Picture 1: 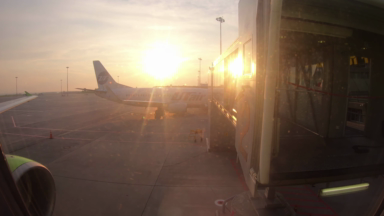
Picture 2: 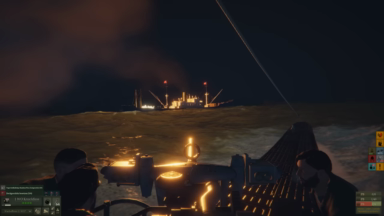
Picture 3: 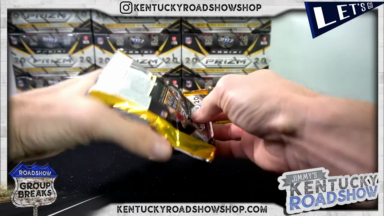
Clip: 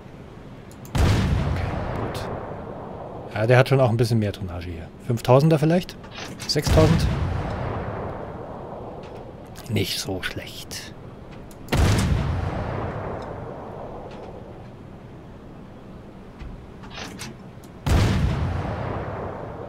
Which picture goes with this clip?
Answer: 2